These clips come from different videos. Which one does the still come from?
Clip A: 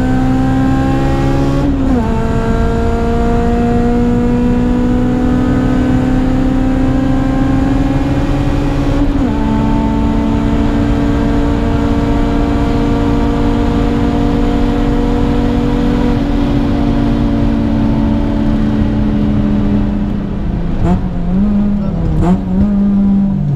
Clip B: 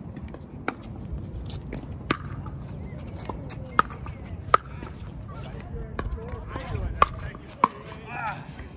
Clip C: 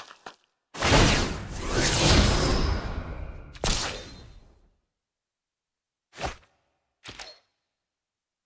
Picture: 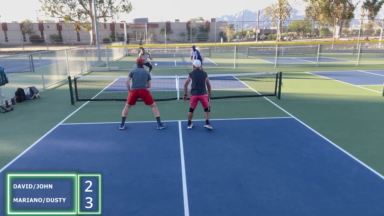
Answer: B